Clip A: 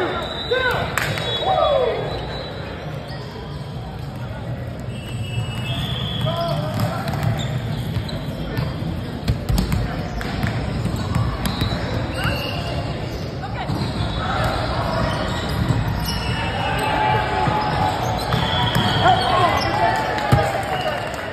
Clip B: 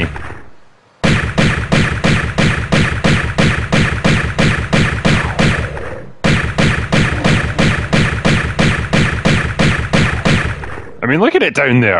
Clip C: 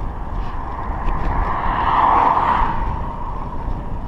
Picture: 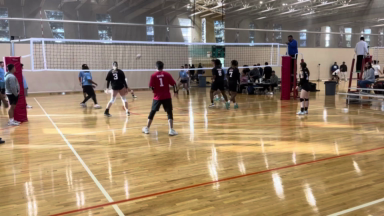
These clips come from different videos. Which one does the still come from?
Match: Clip A